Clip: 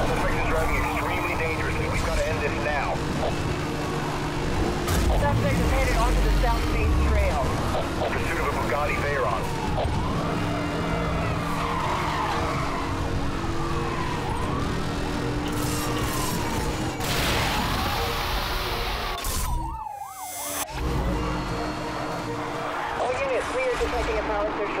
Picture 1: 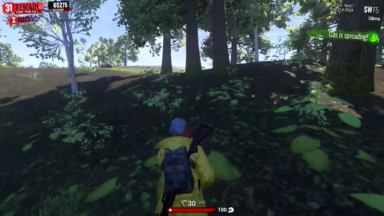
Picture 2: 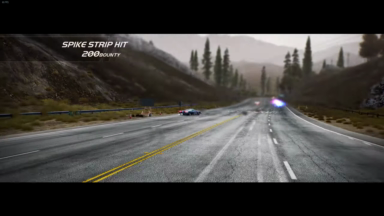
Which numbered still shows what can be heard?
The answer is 2